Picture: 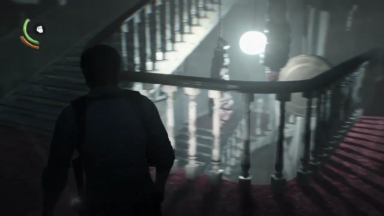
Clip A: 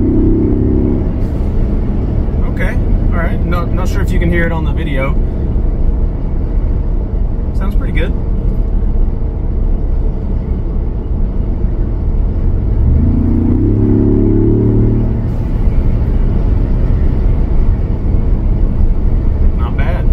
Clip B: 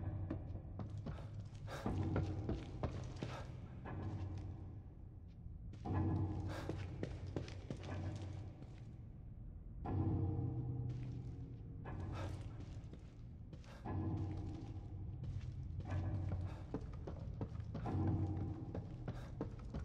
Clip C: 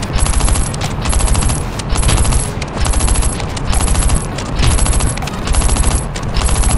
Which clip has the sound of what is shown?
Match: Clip B